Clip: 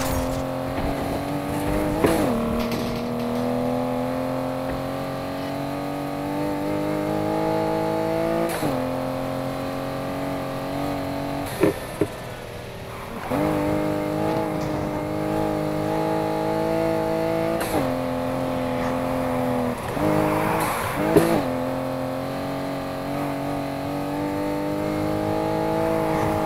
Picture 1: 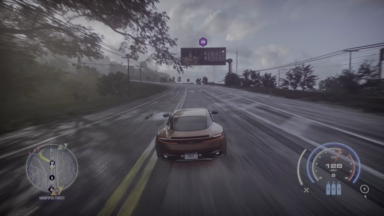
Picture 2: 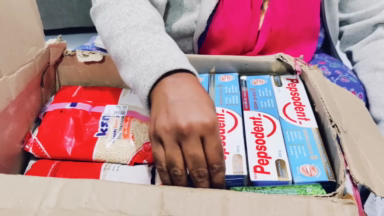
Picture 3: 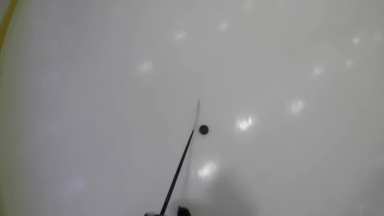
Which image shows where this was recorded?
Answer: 1